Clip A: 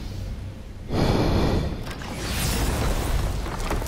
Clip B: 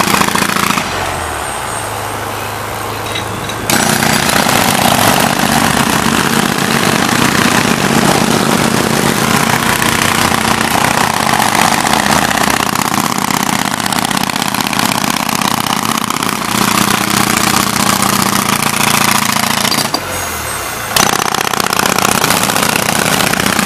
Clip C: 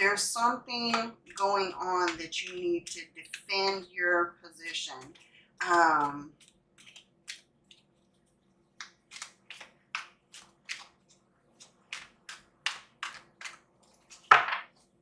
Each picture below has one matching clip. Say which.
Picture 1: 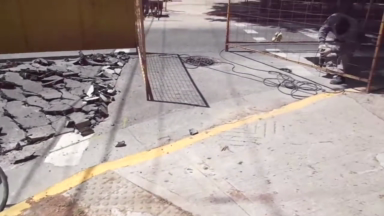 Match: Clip B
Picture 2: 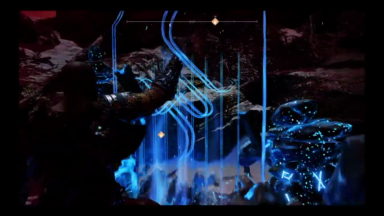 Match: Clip A